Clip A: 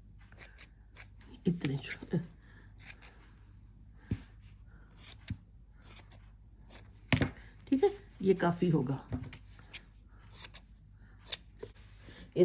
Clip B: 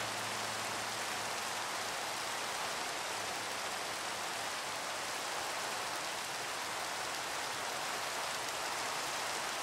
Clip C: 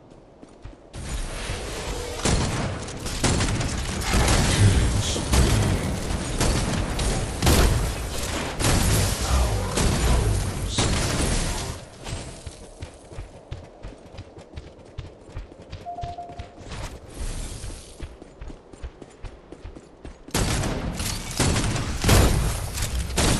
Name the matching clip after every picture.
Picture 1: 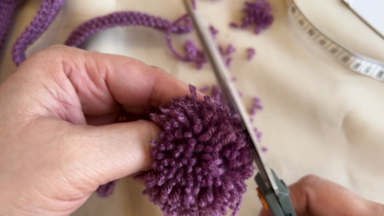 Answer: A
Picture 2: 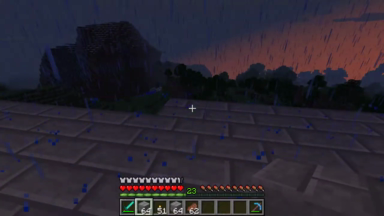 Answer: B